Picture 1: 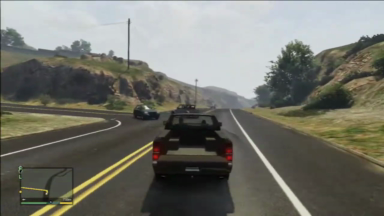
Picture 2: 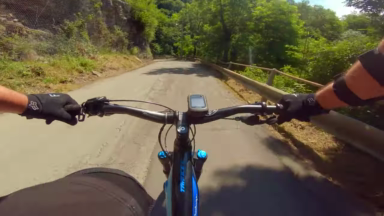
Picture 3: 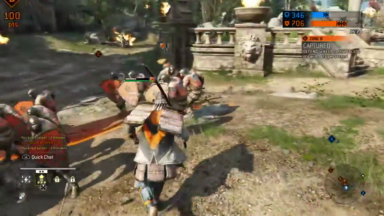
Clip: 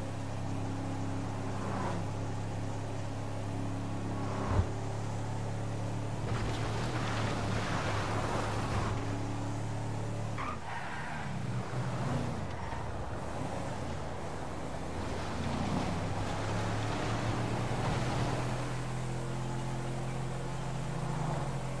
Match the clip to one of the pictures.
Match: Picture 1